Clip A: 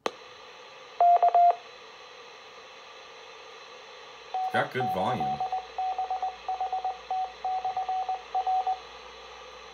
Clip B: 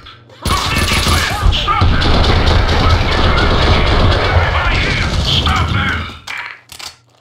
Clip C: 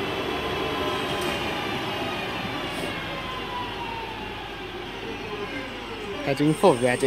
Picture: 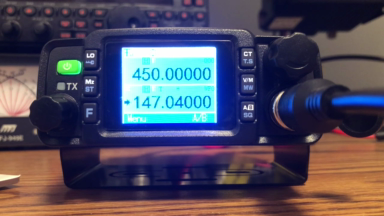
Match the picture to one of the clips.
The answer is A